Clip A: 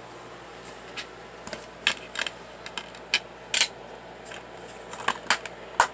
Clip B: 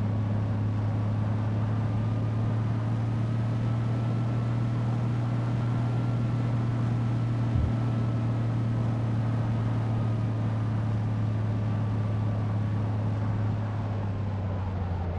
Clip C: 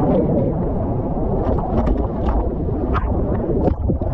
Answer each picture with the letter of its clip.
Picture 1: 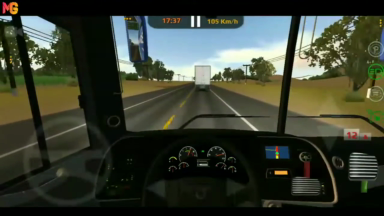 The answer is B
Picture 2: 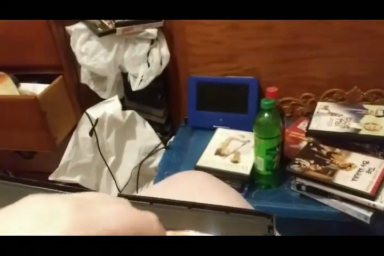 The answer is A